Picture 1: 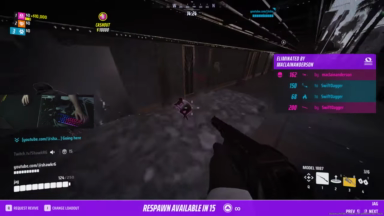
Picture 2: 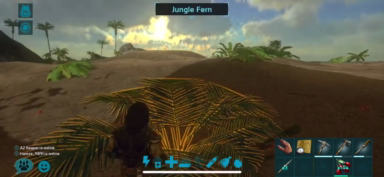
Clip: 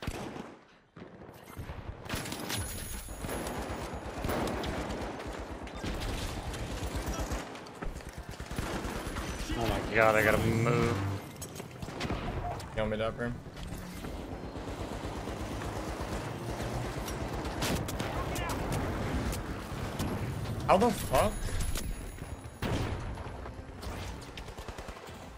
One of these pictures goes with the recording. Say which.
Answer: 1